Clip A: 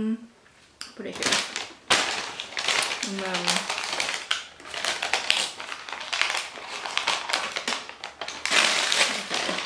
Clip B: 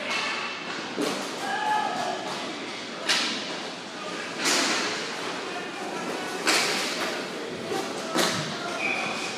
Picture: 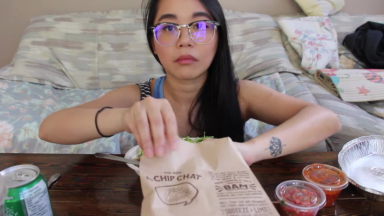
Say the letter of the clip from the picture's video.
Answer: A